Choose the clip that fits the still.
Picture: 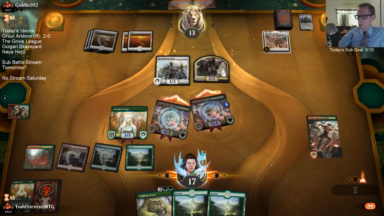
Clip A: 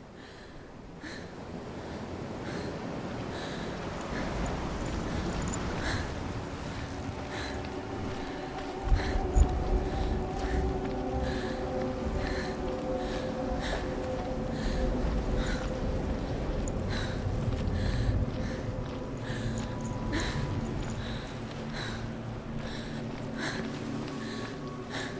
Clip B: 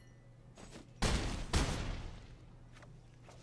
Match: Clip B